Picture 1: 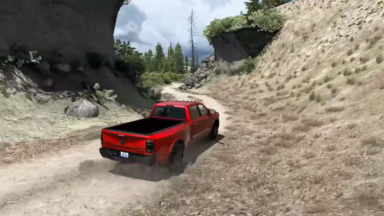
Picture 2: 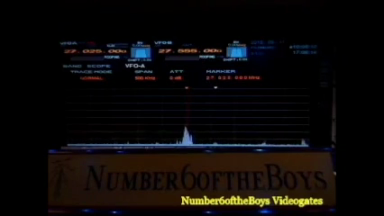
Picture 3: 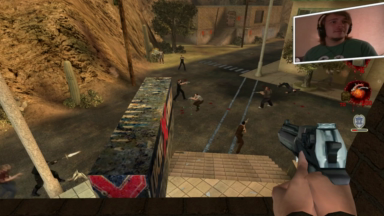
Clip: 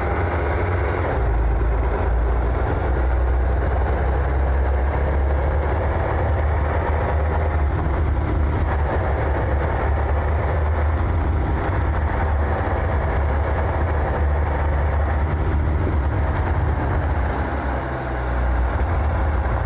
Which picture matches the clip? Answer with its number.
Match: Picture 1